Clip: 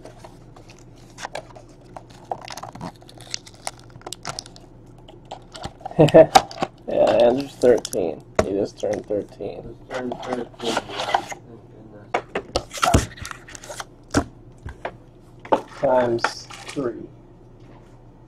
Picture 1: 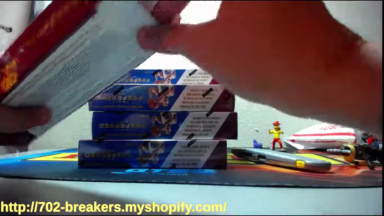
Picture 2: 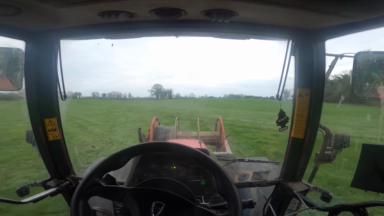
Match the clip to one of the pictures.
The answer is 1